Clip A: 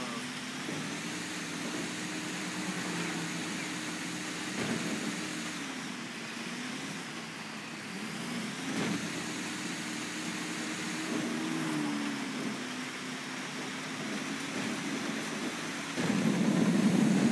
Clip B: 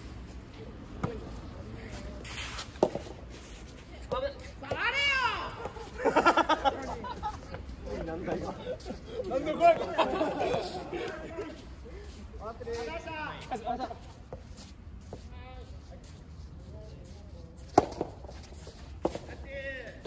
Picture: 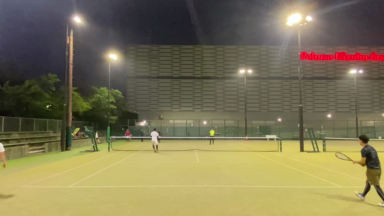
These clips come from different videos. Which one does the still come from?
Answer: B